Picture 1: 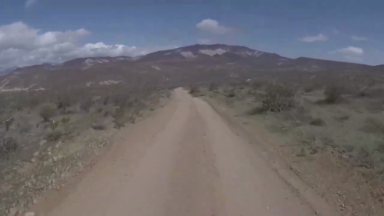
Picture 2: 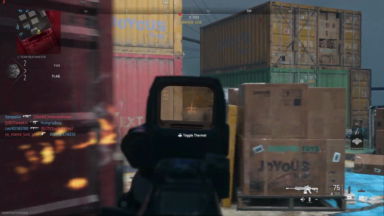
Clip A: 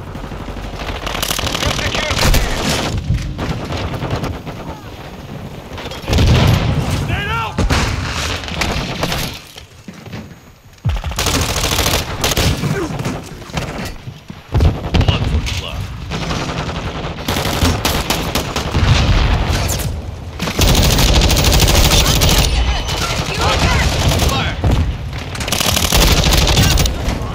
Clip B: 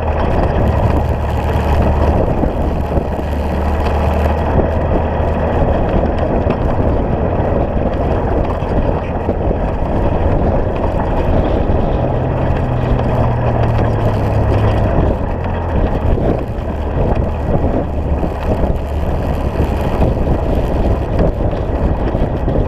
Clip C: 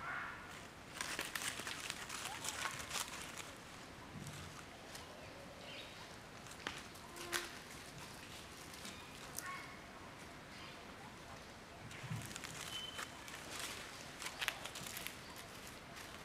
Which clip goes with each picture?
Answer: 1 B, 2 A